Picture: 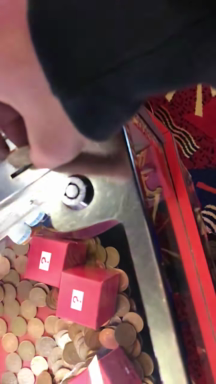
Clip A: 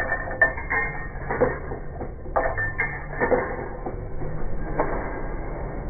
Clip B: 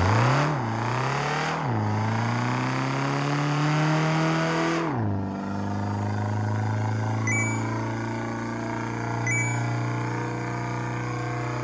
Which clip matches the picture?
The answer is A